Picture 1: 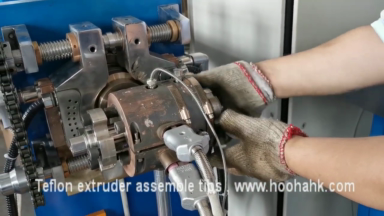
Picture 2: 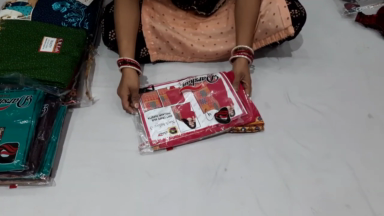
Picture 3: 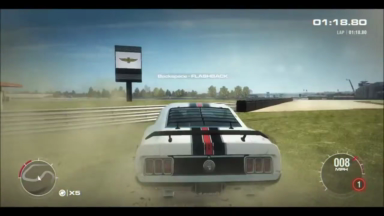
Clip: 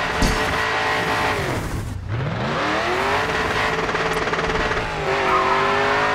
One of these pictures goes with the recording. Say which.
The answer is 3